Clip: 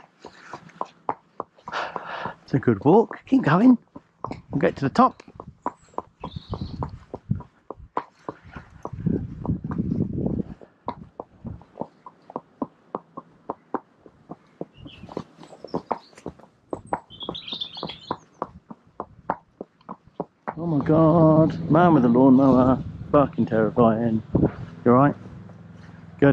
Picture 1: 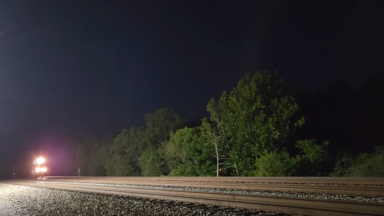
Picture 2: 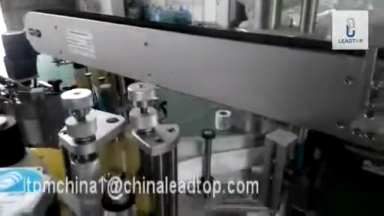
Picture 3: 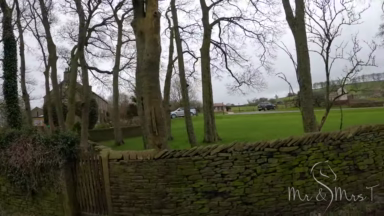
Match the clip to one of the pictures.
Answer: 3